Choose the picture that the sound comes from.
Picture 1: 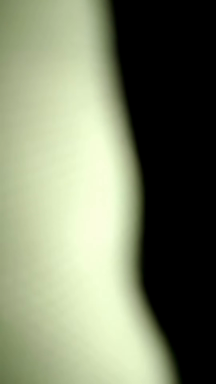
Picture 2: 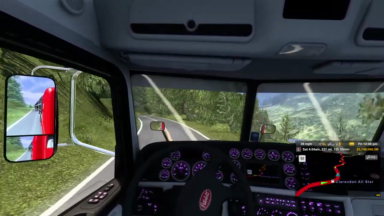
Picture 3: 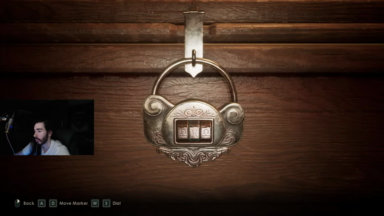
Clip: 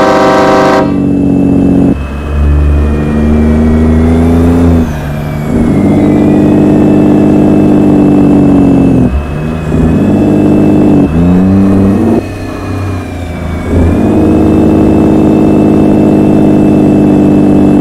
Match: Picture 2